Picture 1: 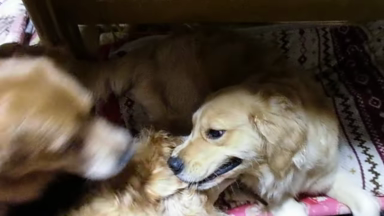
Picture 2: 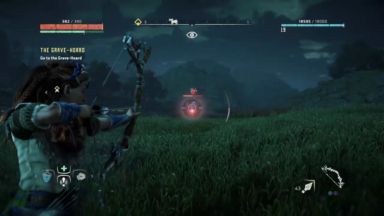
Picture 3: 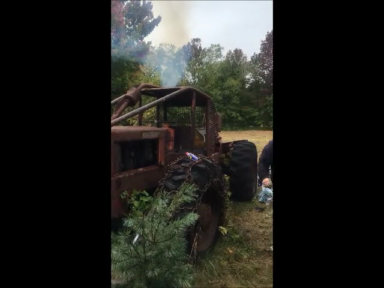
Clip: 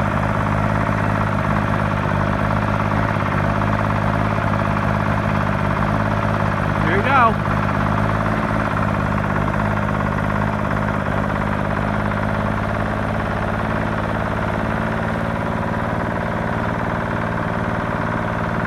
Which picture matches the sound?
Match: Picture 3